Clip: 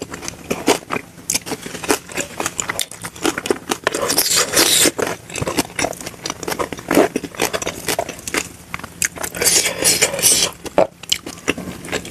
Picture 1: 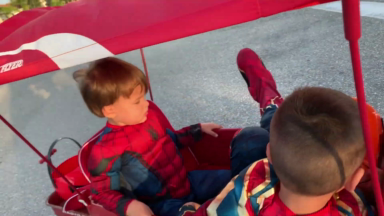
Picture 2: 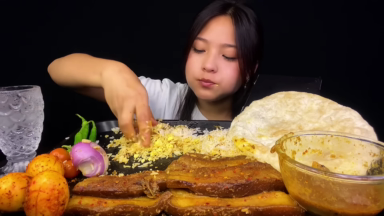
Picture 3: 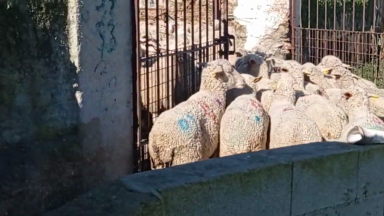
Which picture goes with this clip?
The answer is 2